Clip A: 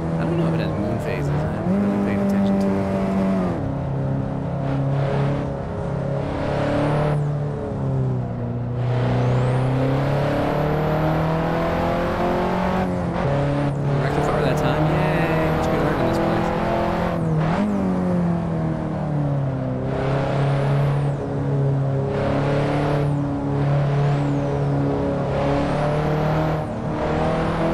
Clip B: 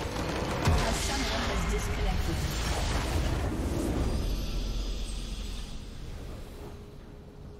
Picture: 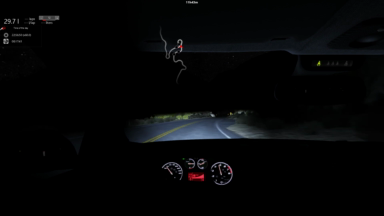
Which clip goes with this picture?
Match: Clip A